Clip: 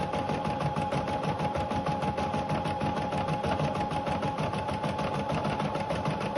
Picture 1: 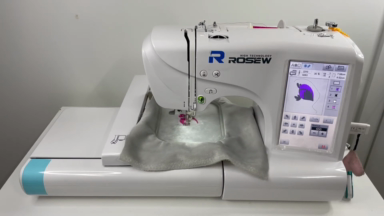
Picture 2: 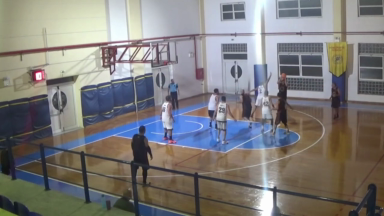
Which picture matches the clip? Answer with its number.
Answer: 1